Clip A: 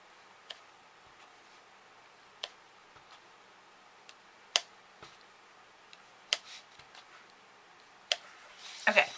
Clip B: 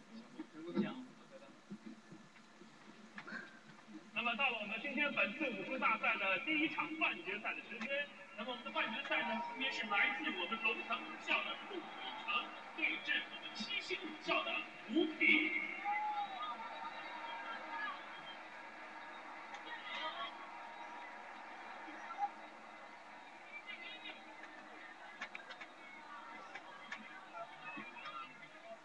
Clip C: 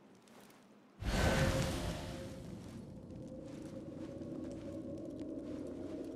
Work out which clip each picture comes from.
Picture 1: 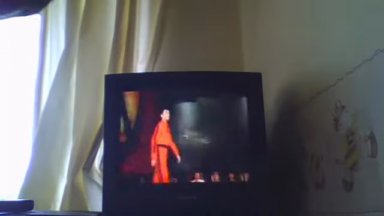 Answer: B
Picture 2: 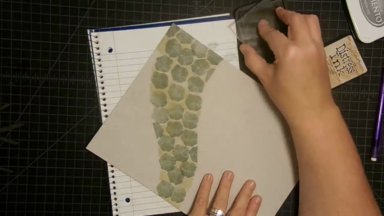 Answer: A